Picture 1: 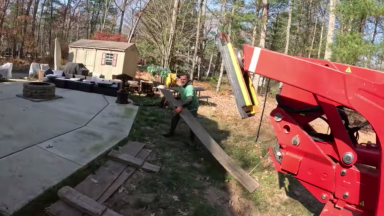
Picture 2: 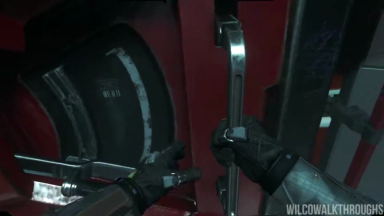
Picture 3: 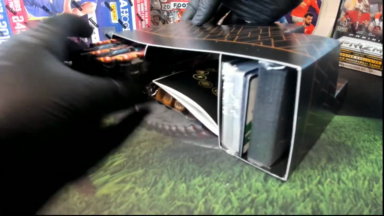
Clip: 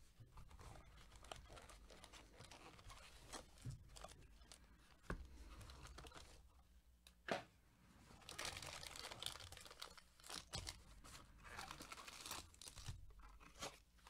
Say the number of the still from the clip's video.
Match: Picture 3